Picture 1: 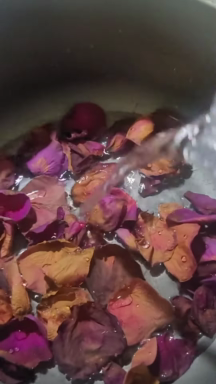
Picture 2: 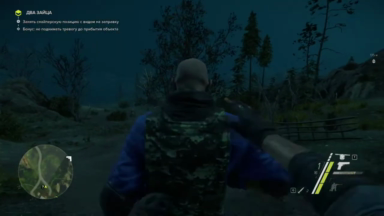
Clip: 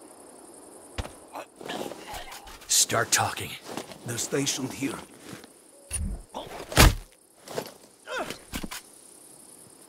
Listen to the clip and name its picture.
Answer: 2